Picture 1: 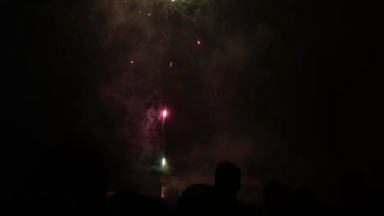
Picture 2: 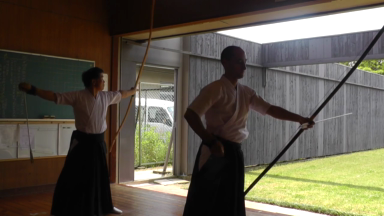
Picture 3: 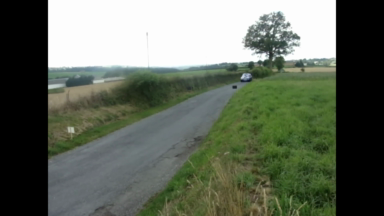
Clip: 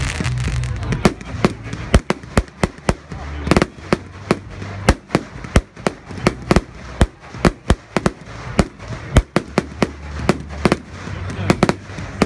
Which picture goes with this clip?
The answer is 1